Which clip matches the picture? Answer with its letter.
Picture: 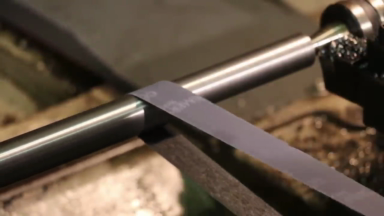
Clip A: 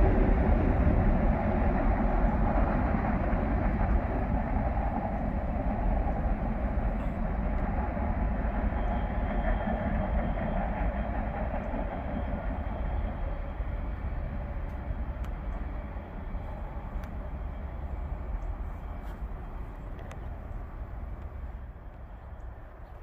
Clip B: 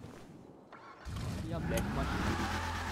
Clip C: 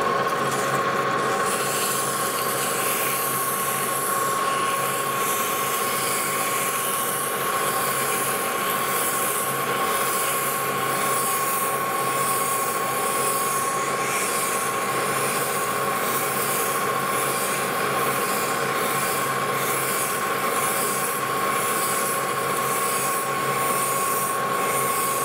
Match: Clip C